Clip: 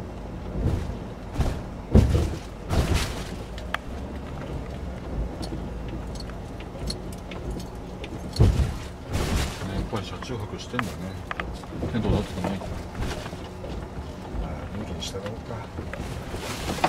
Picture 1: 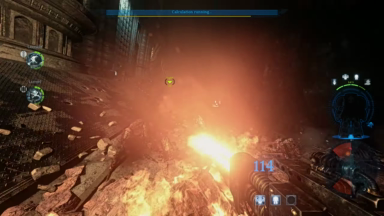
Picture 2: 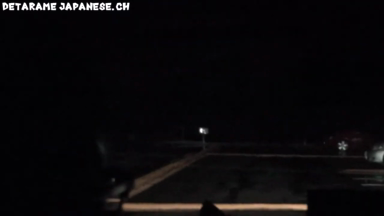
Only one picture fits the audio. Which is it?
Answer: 2